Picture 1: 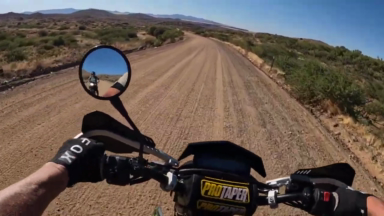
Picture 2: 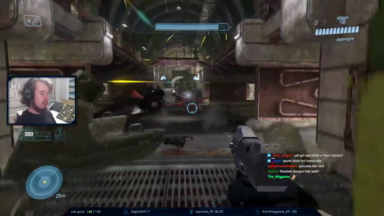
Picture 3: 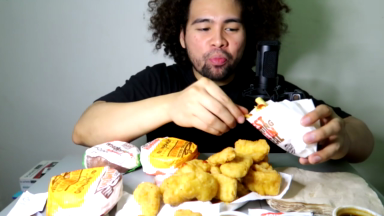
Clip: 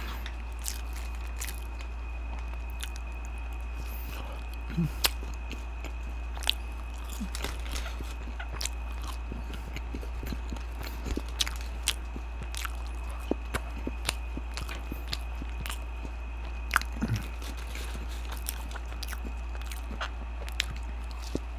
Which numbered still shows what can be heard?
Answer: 3